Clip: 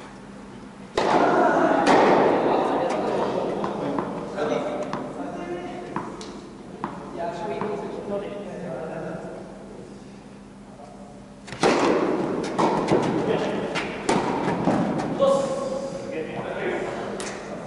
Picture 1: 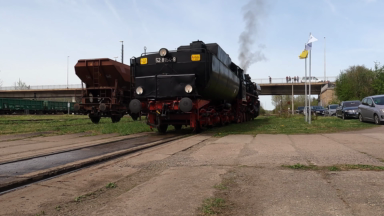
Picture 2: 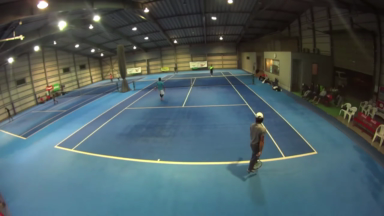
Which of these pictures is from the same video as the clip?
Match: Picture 2